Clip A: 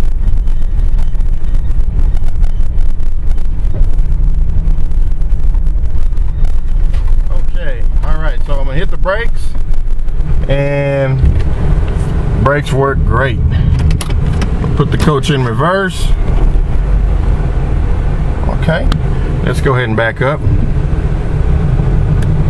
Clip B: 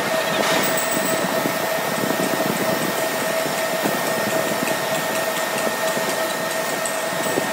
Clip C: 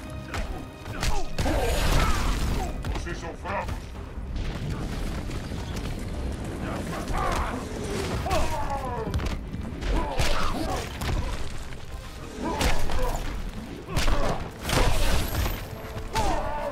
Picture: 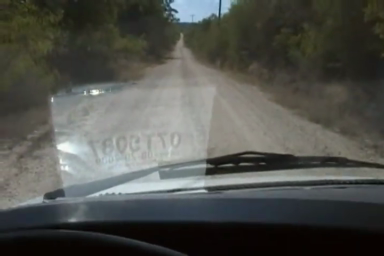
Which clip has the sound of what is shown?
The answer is A